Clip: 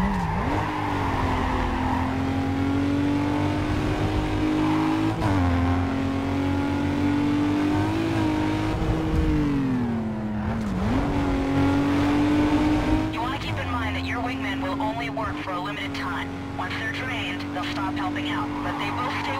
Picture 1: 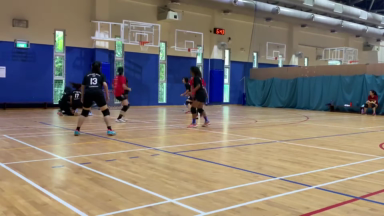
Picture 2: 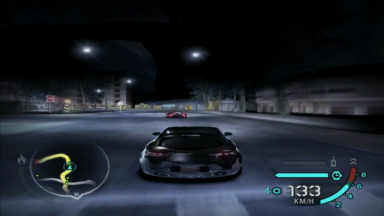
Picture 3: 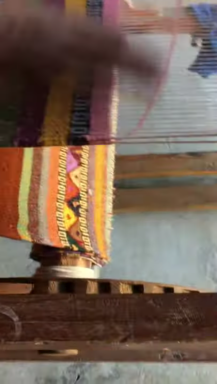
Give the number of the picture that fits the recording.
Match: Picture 2